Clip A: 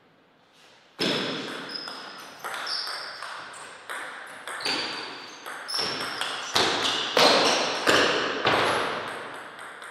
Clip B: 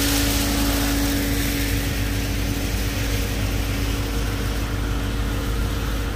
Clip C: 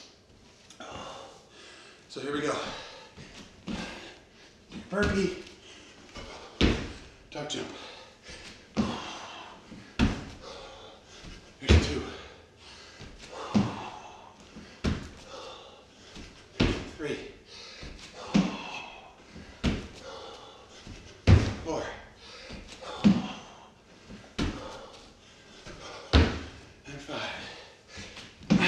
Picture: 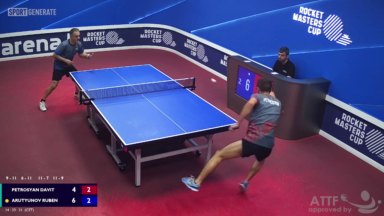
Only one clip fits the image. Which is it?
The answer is A